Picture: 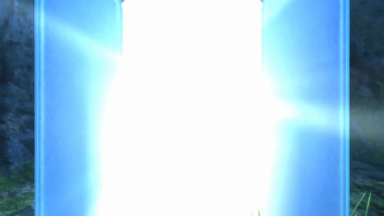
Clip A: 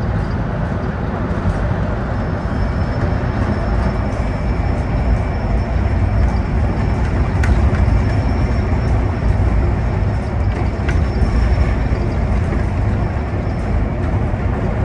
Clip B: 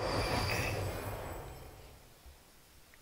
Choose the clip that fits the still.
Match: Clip B